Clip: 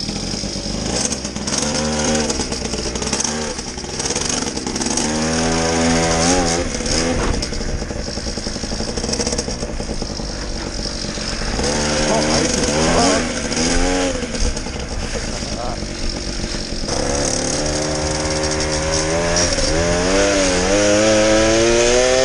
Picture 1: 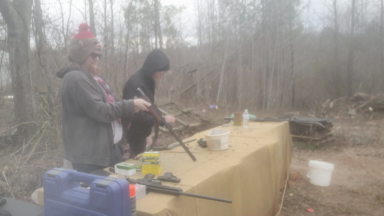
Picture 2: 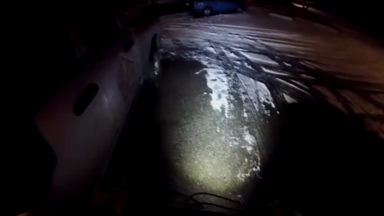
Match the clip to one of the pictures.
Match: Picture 2